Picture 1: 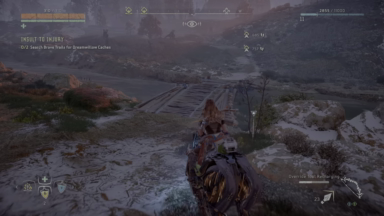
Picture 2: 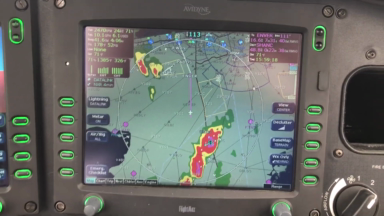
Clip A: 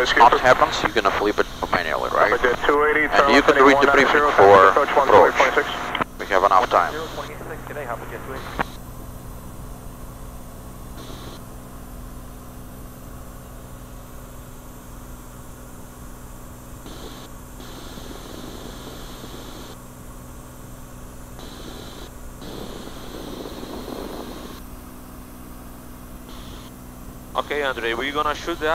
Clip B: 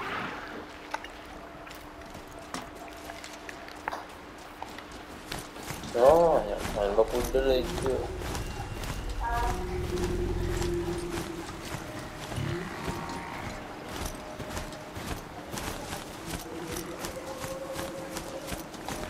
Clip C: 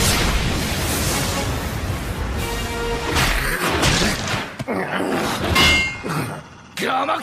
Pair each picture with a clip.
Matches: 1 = B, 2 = A